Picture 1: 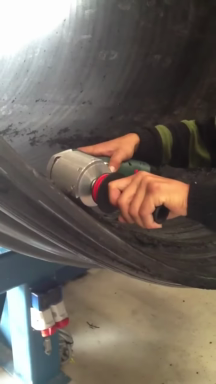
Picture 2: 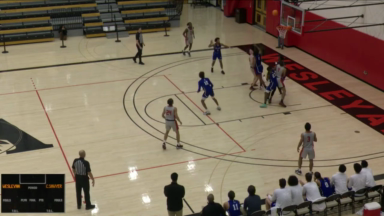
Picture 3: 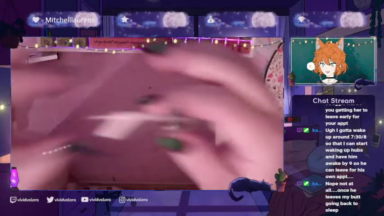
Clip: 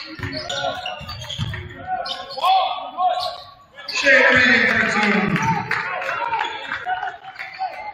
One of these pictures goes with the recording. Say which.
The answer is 2